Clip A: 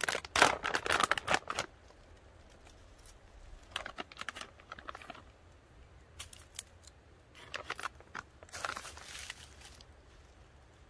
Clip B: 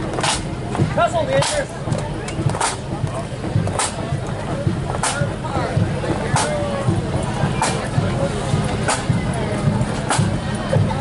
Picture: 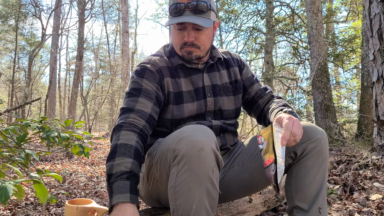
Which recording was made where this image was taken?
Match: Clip A